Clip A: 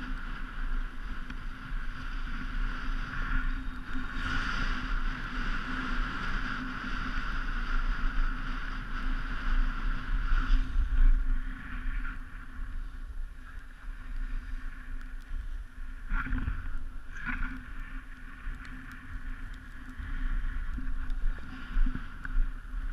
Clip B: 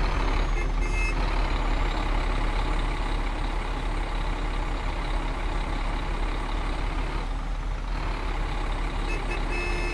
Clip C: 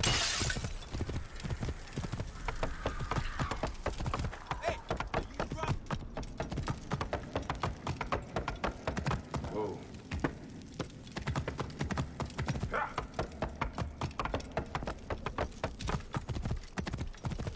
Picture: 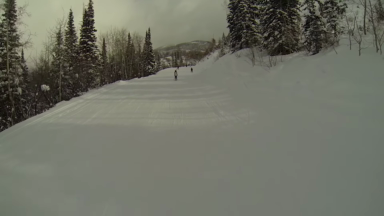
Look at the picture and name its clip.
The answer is A